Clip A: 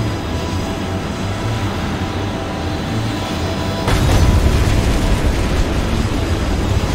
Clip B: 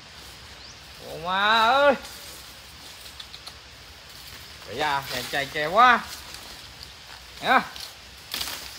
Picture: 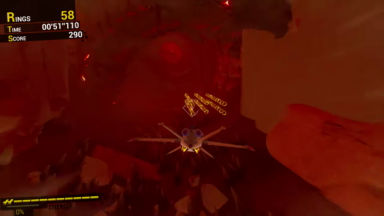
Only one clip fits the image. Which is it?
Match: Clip A